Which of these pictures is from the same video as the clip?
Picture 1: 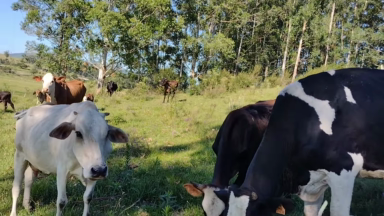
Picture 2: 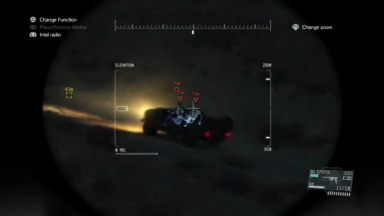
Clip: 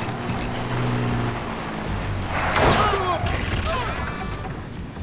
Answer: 2